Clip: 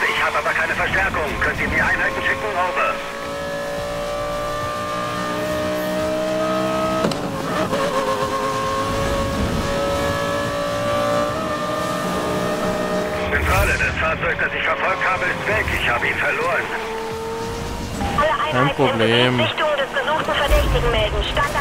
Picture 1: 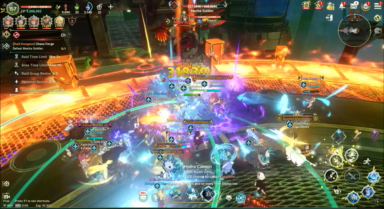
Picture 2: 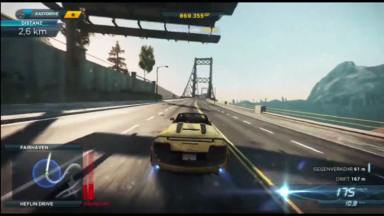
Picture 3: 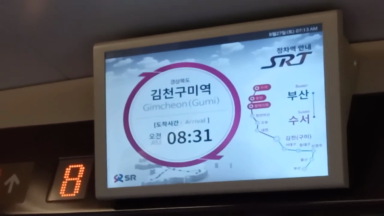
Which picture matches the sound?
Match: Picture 2